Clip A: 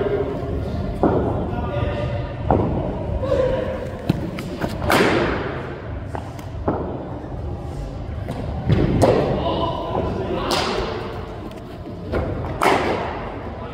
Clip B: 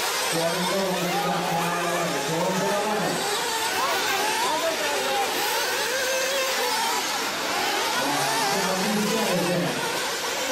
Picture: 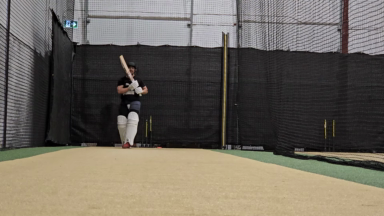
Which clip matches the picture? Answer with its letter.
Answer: A